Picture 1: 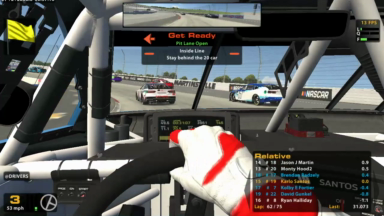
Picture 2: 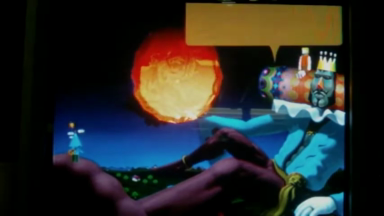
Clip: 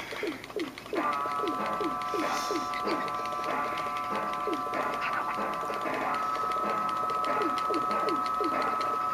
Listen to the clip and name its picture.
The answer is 2